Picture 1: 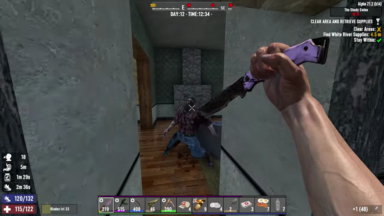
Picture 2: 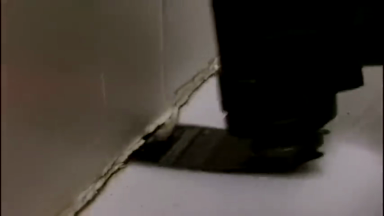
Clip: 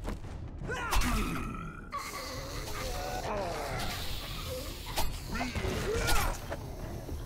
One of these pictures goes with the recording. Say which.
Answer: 1